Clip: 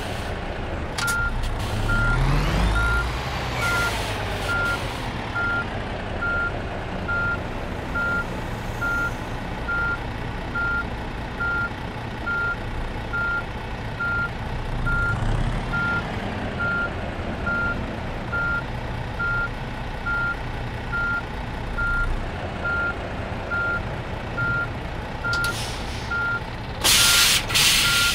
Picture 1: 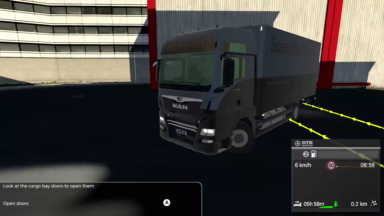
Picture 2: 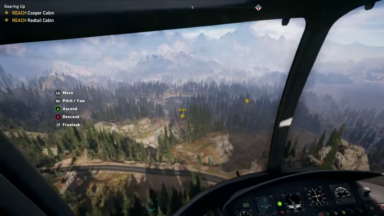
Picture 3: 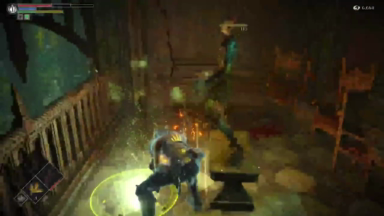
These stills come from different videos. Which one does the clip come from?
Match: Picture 1